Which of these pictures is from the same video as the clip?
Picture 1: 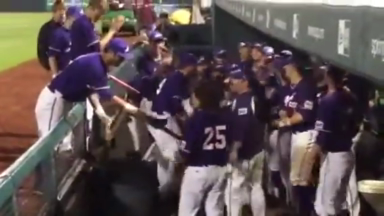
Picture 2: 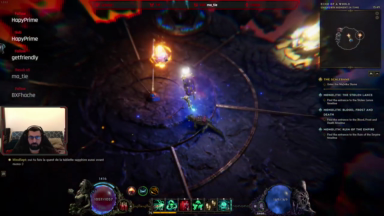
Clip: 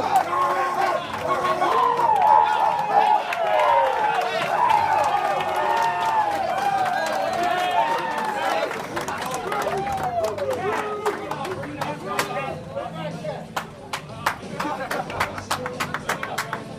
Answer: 1